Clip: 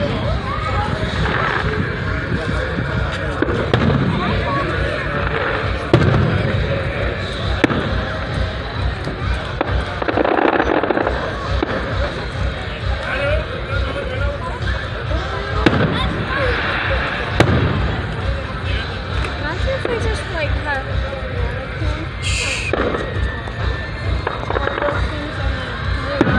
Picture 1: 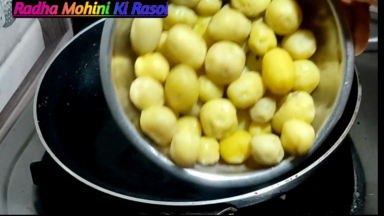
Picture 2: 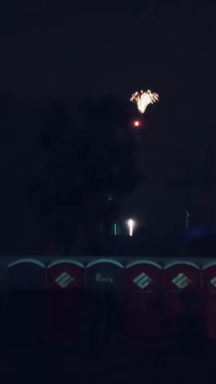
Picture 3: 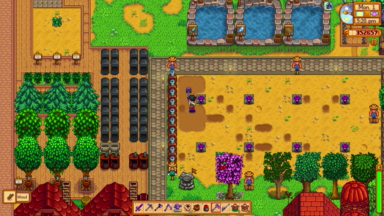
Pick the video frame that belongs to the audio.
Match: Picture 2